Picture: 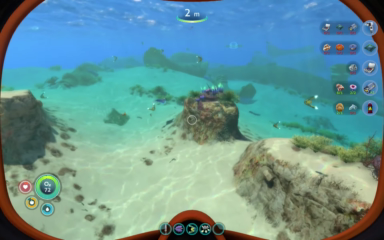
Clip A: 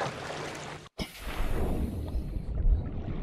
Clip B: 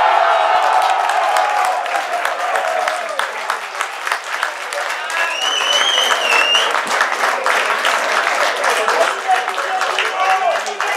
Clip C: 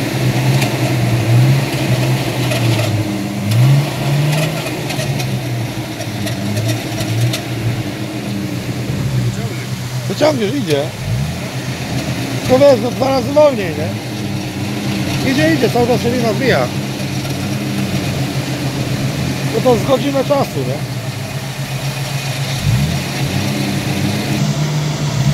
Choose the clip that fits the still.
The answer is A